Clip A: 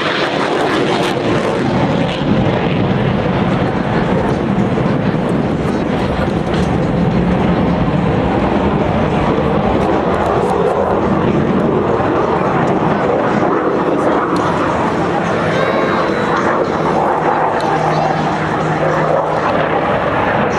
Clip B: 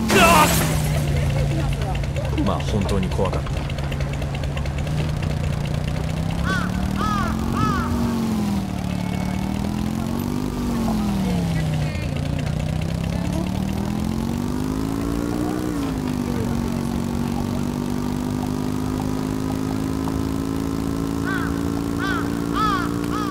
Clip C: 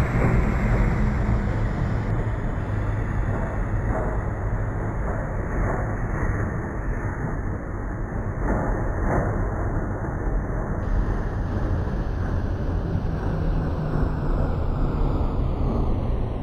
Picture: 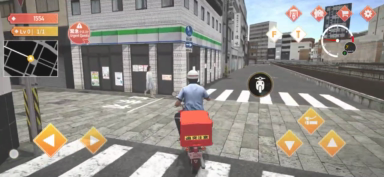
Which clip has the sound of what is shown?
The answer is B